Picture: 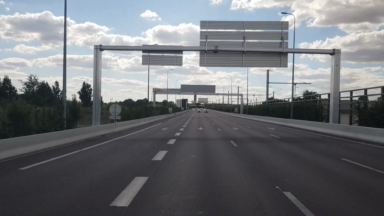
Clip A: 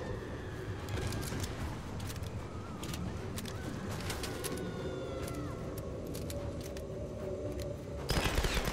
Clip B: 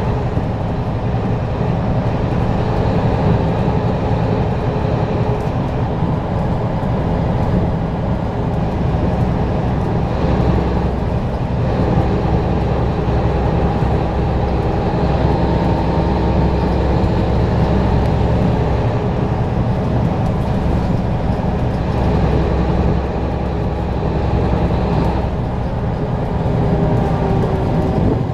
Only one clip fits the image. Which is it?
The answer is B